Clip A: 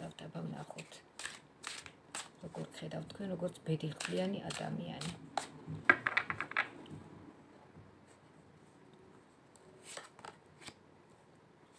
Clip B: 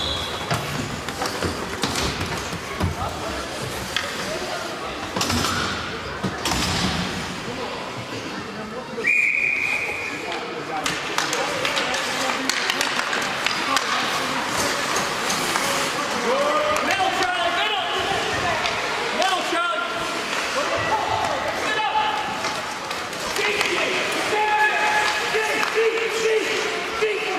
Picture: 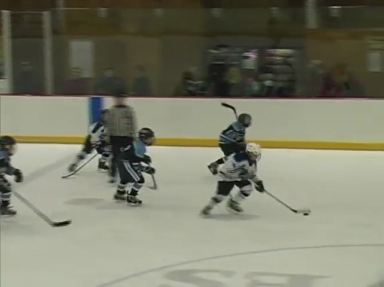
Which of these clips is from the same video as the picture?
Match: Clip B